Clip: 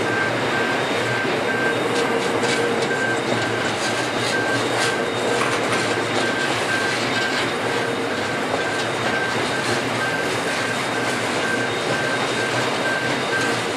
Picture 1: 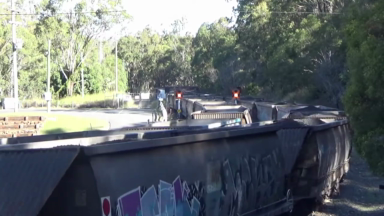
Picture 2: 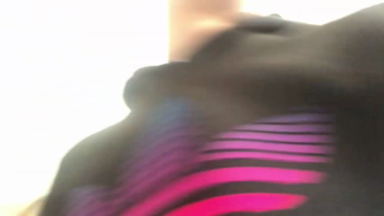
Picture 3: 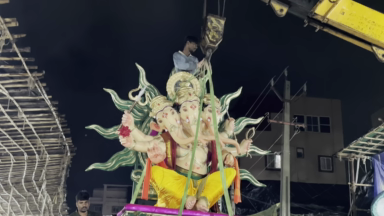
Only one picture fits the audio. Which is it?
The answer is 1